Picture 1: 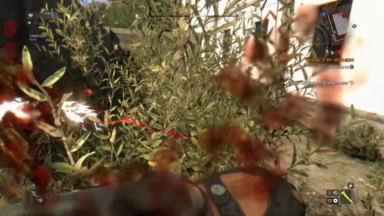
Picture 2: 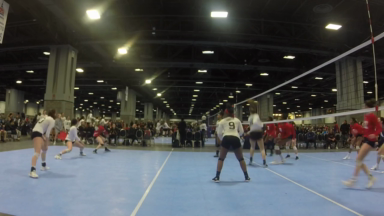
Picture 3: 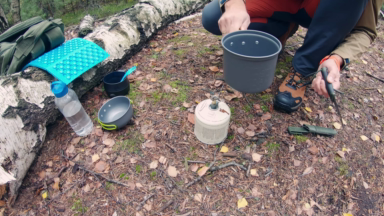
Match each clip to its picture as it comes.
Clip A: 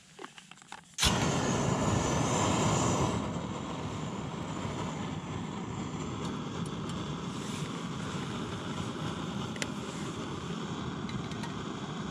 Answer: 3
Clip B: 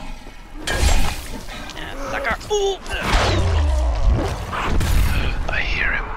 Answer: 1